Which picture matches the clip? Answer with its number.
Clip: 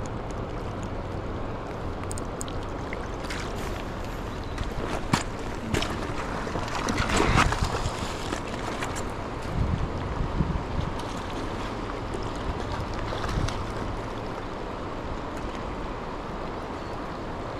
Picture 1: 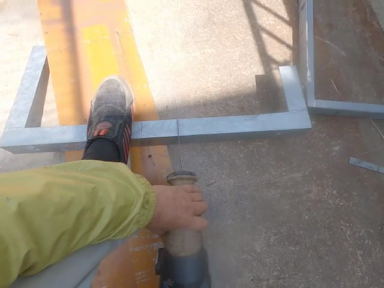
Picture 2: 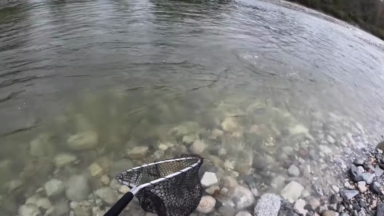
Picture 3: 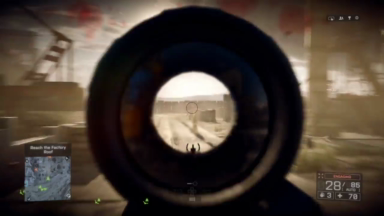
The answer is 2